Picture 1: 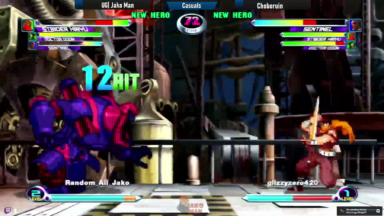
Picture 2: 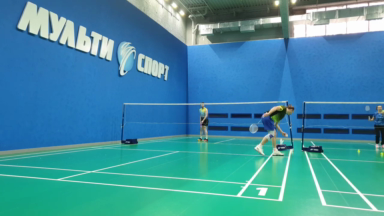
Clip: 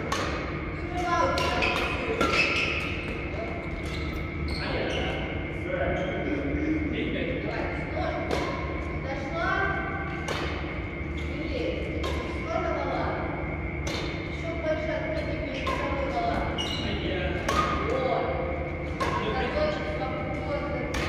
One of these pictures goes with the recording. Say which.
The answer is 2